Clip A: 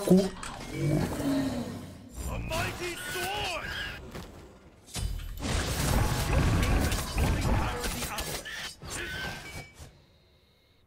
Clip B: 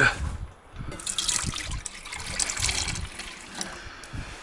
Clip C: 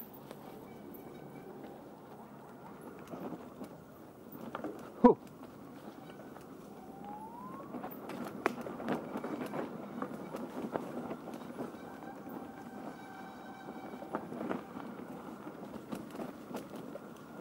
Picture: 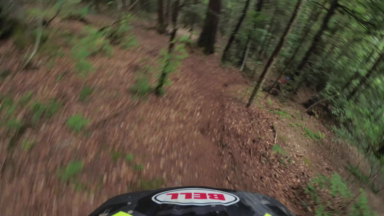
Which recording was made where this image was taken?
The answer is C